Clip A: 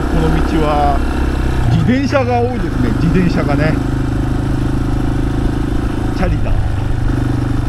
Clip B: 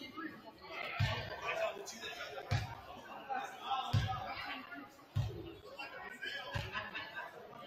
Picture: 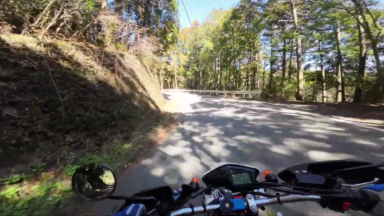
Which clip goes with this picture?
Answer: A